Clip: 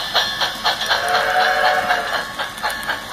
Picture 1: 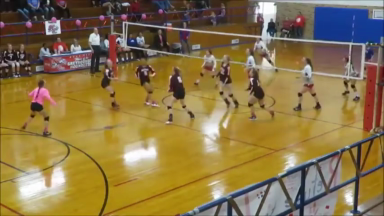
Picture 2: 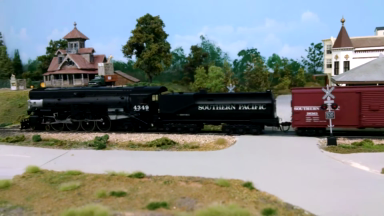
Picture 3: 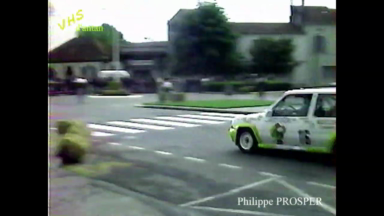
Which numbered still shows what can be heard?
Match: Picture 2